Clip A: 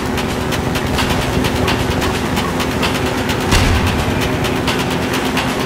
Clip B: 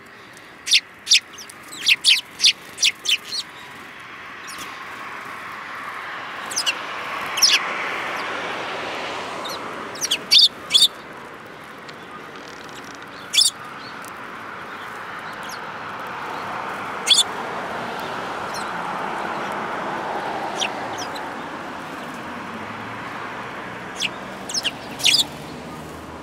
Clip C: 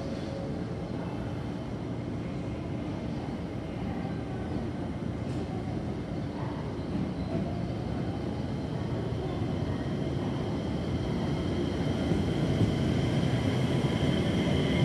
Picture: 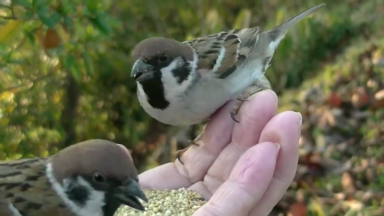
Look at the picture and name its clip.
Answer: B